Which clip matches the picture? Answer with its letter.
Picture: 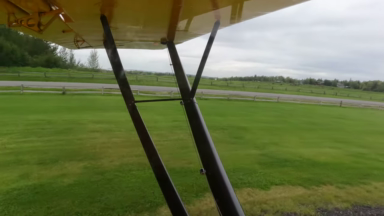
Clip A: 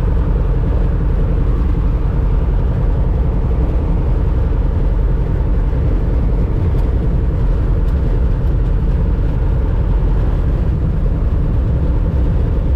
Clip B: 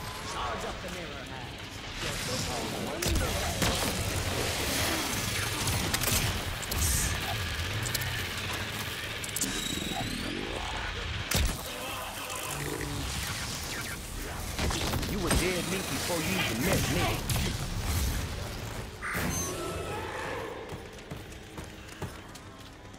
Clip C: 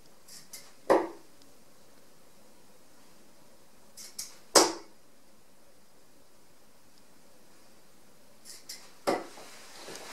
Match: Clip A